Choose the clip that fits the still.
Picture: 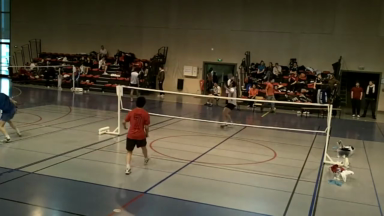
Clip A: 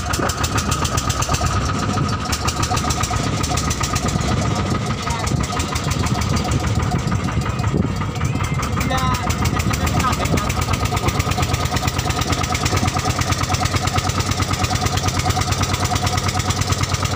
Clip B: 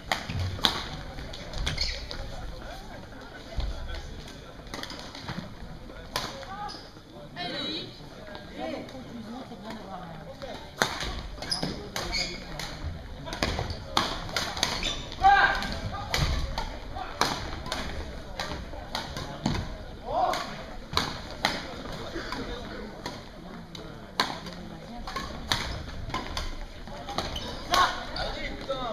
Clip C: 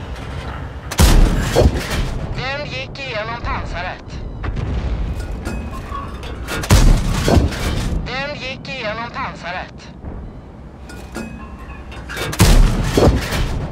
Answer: B